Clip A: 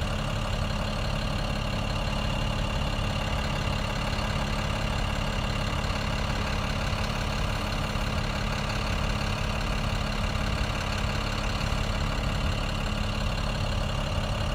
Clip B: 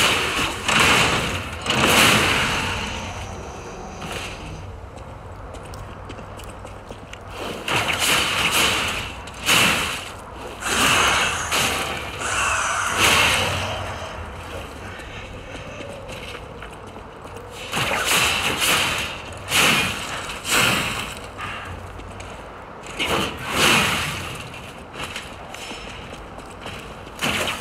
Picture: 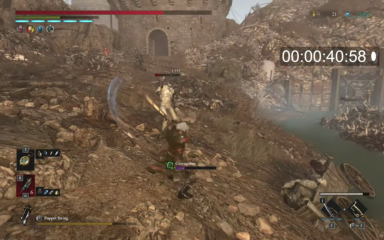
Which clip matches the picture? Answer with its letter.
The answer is B